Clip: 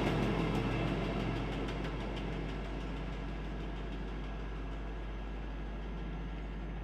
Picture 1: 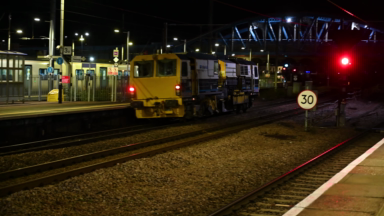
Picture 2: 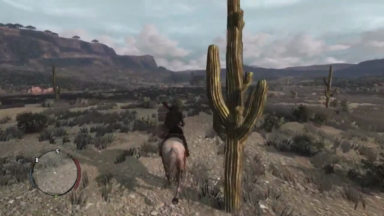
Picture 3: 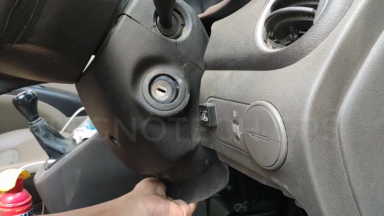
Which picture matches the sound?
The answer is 1